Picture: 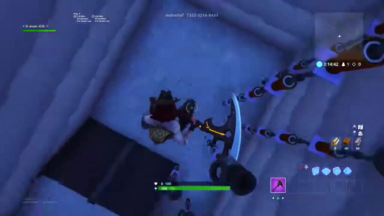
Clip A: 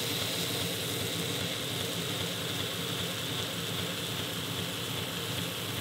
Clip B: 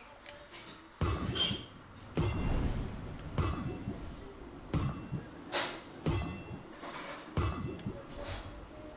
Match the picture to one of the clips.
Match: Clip B